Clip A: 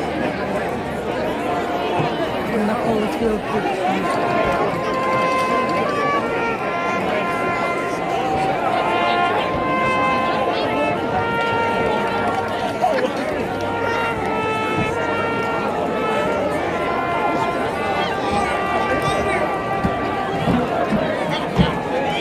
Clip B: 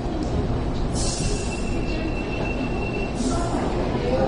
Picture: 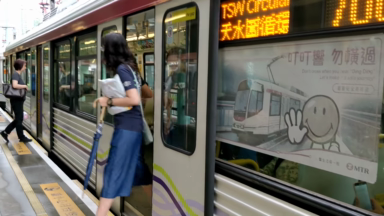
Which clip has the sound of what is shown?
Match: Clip B